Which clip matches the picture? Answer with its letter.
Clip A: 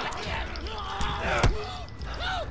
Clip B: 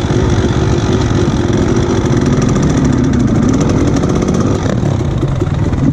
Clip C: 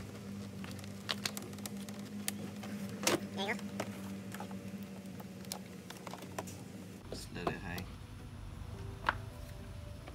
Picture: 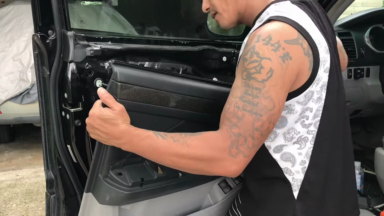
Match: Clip C